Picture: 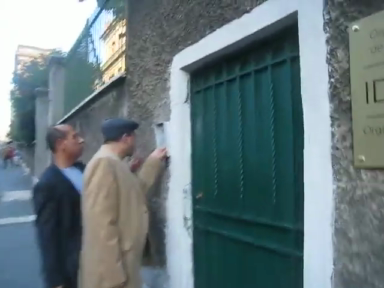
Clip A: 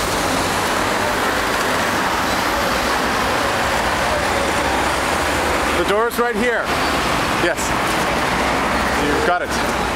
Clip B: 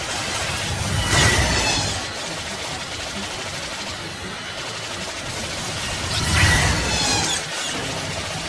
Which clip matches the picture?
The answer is A